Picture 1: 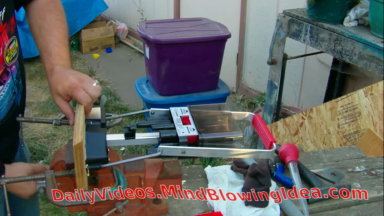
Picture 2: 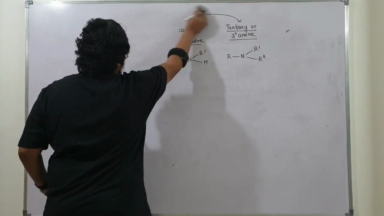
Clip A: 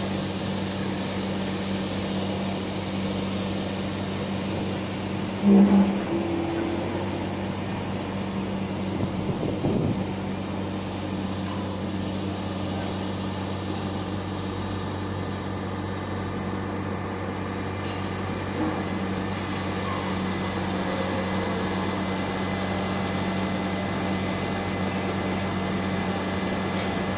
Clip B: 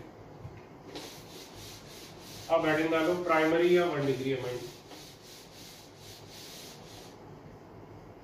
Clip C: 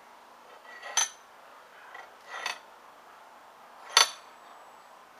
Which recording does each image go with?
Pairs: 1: C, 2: B